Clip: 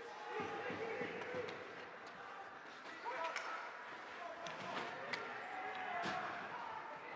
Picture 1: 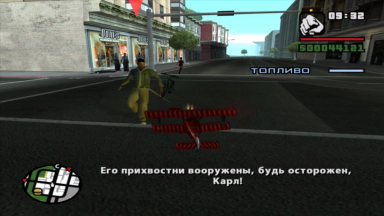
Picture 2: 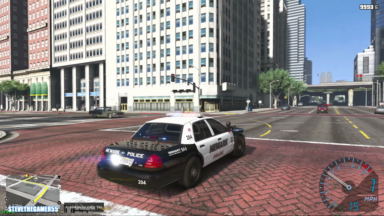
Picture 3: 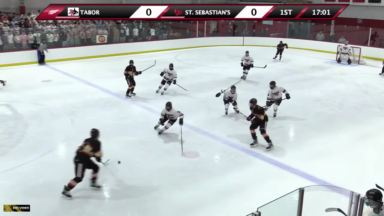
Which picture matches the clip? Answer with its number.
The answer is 3